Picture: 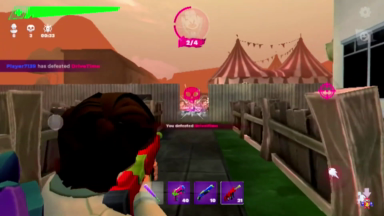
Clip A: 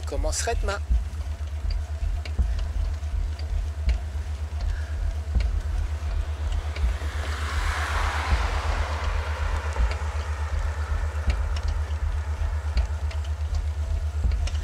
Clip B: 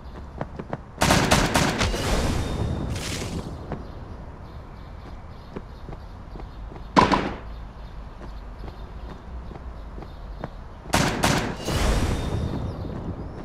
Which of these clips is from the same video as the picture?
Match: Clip B